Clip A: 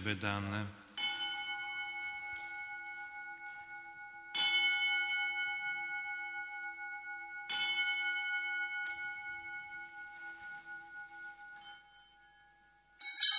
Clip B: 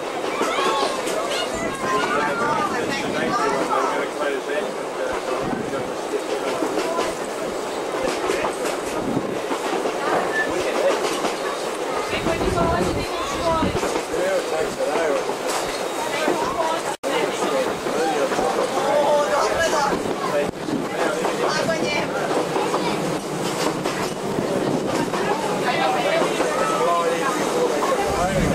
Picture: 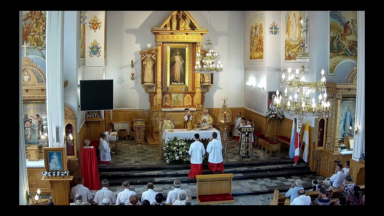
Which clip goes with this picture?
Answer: A